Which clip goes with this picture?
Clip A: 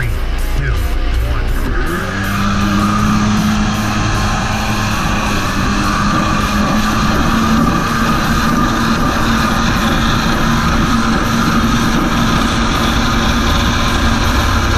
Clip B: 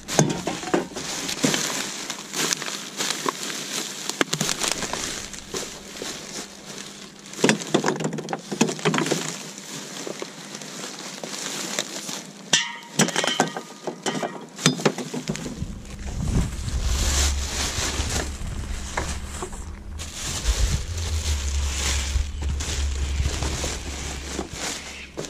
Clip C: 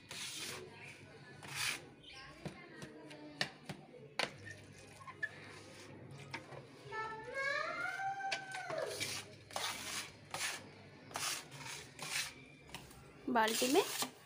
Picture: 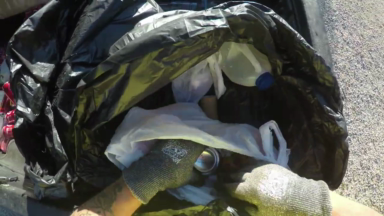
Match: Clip B